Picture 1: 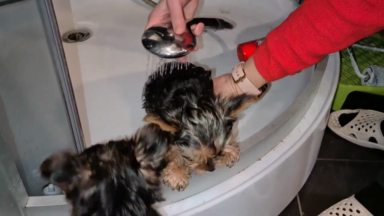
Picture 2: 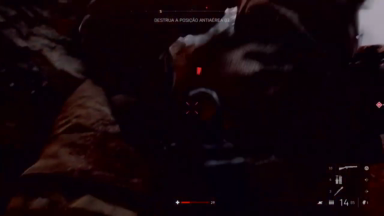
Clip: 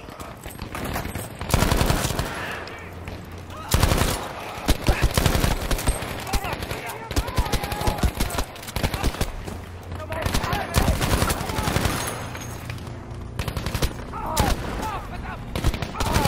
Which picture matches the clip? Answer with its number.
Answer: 2